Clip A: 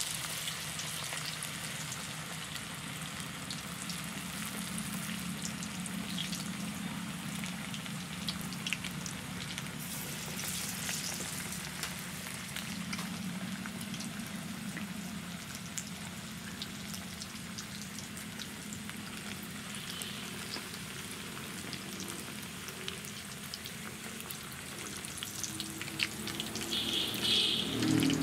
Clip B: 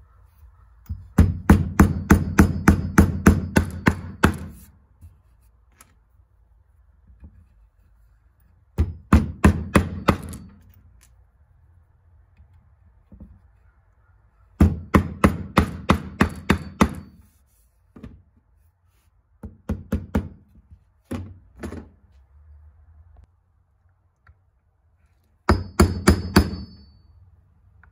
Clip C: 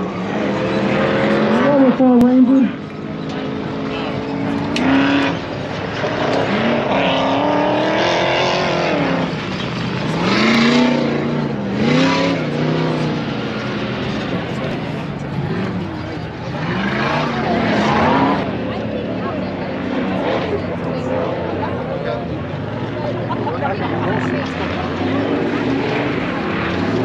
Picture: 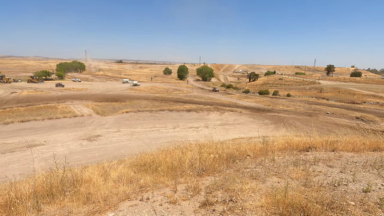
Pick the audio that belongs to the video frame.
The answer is C